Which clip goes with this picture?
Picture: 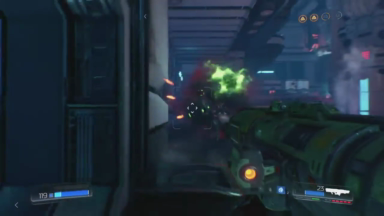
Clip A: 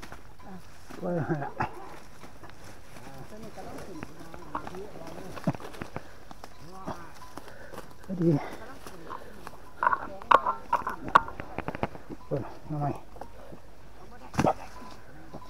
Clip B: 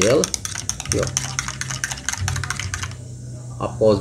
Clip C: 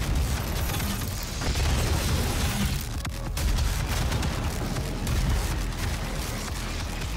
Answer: C